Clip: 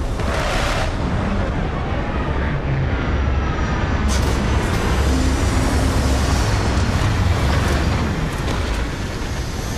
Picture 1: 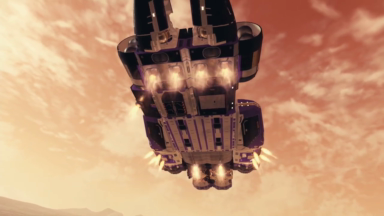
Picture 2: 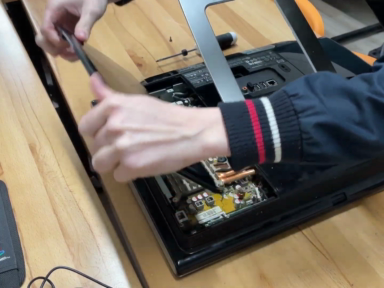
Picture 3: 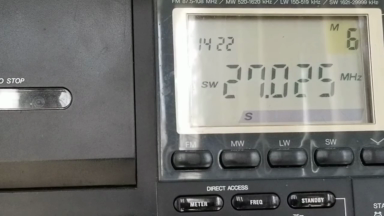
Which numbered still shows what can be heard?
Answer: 1